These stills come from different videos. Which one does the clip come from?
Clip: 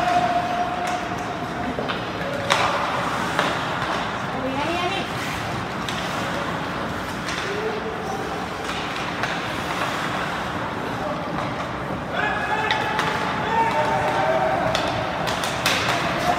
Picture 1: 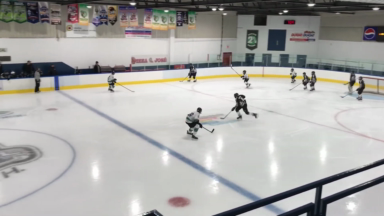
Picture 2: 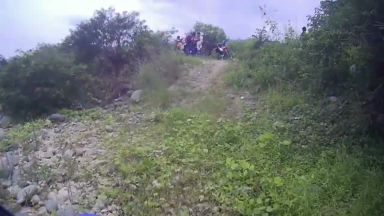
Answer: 1